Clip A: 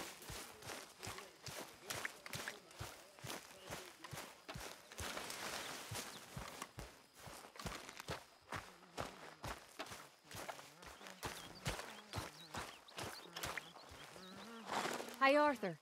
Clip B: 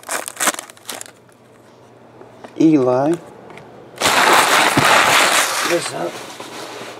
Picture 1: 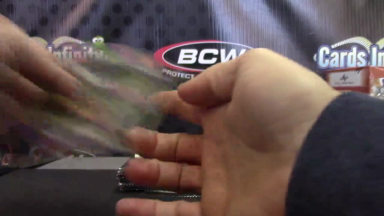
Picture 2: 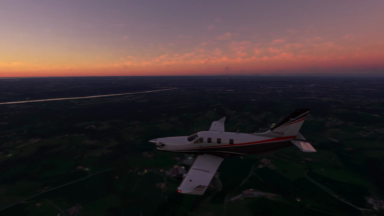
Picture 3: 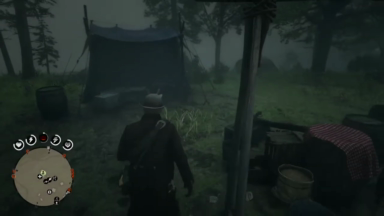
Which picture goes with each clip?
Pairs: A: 3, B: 1